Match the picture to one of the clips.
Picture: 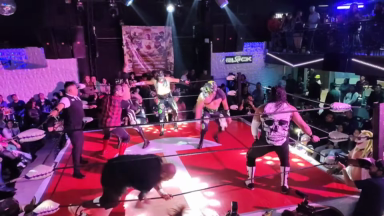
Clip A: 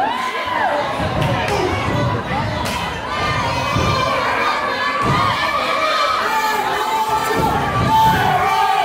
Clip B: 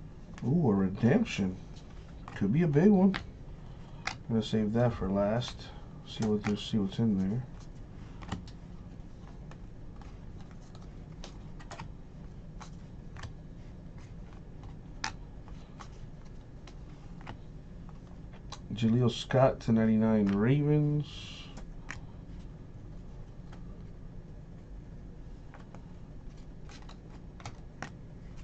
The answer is A